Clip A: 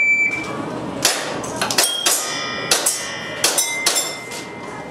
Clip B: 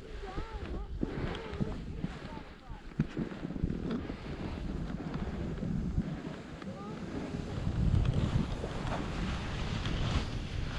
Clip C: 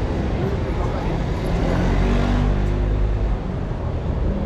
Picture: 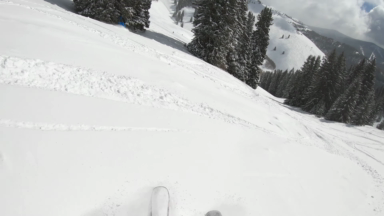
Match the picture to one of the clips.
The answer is B